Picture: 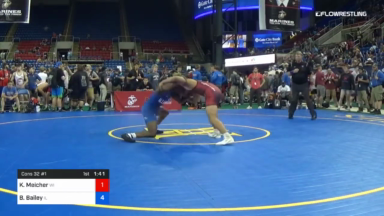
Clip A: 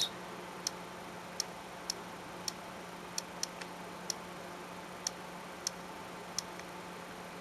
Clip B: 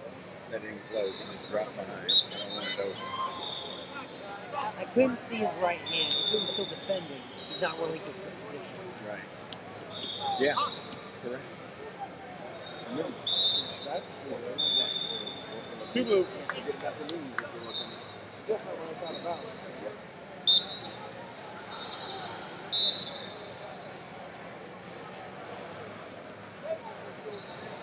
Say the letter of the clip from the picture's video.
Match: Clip B